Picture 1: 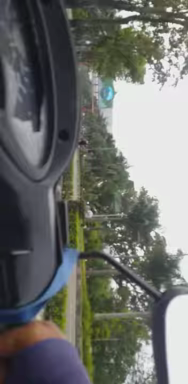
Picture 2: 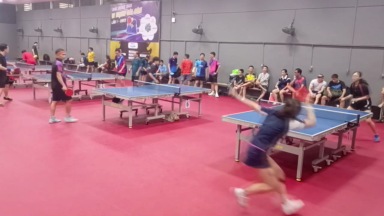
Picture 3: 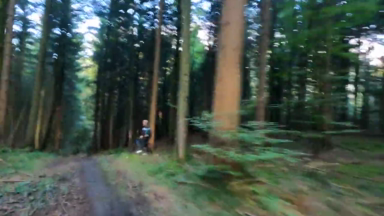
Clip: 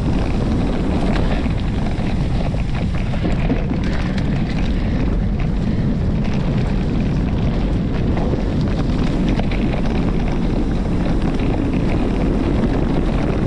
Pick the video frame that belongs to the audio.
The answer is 3